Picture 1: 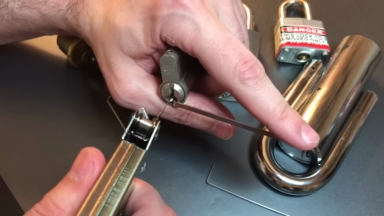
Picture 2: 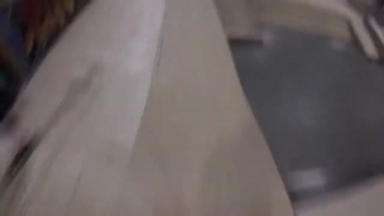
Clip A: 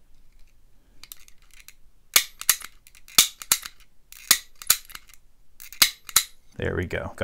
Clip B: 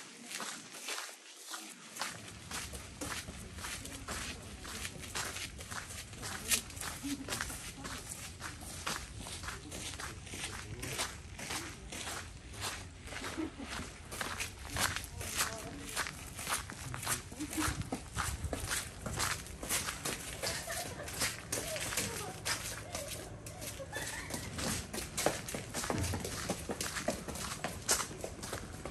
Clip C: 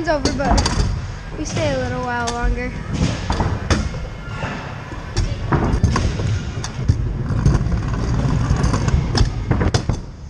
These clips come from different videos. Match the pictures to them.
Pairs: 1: A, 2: C